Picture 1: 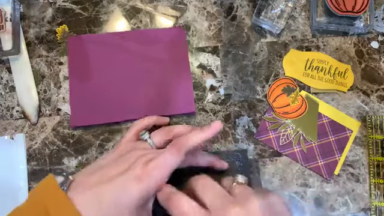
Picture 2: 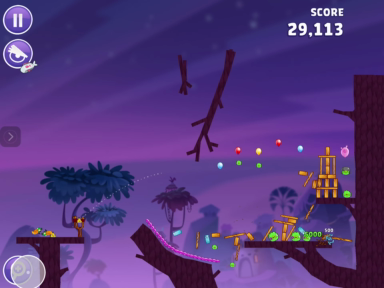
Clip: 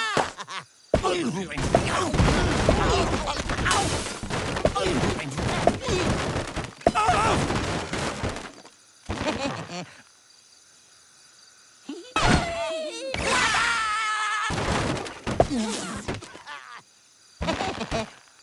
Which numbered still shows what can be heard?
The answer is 2